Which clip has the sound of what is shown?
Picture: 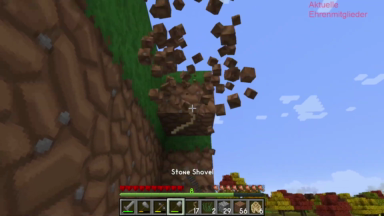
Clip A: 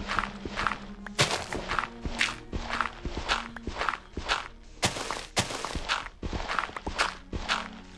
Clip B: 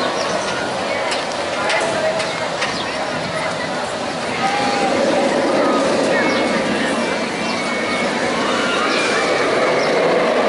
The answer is A